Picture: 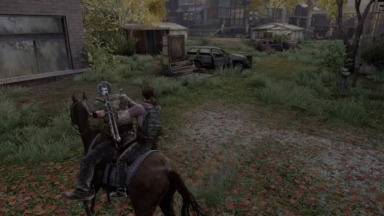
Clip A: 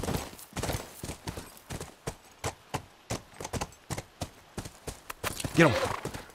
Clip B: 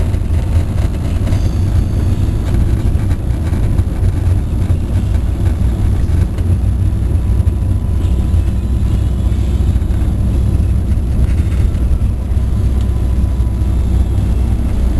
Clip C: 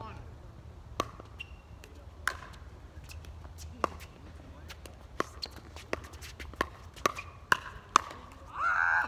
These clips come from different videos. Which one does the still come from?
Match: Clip A